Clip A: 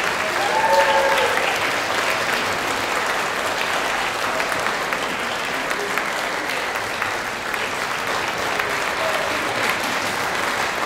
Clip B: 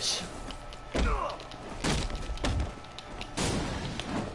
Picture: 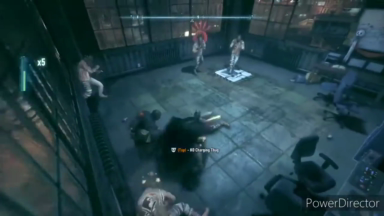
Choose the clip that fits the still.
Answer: B